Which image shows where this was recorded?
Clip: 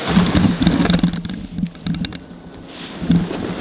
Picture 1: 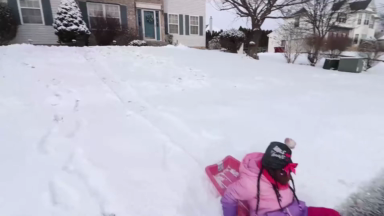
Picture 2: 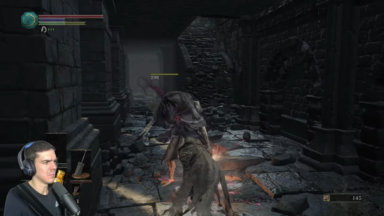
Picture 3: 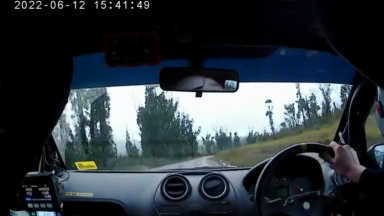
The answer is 1